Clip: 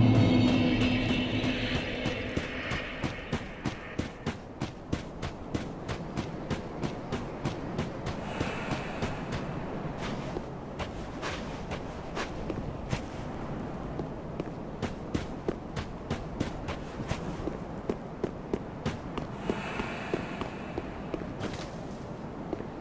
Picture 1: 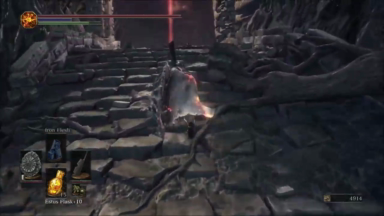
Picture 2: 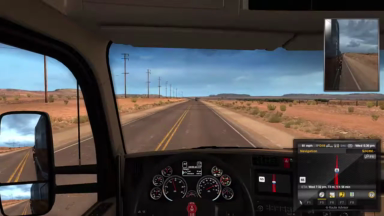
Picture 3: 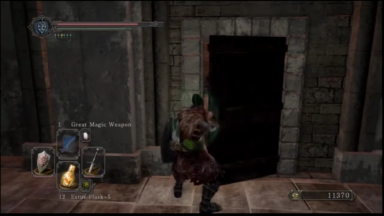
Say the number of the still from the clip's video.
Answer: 1